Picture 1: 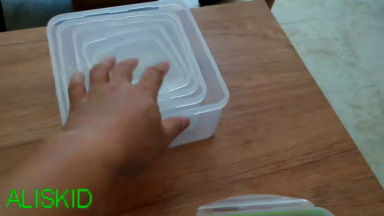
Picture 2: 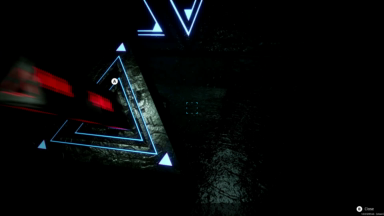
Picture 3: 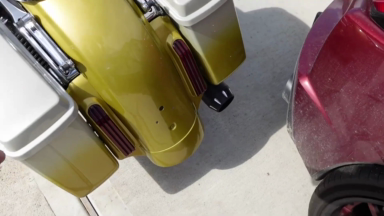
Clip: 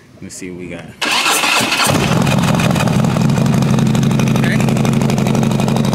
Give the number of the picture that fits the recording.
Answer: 3